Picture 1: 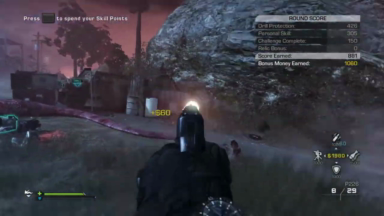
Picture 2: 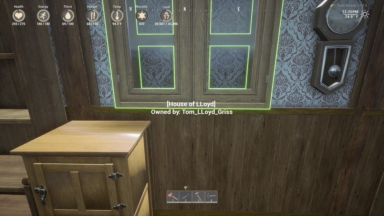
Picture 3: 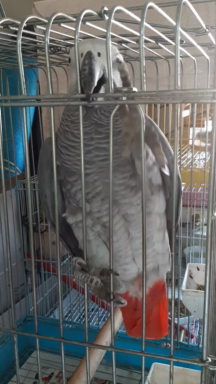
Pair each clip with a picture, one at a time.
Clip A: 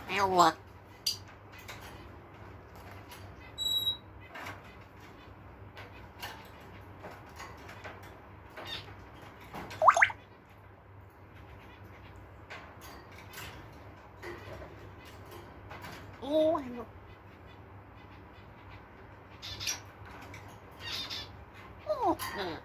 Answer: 3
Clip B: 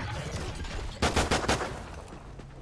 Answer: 1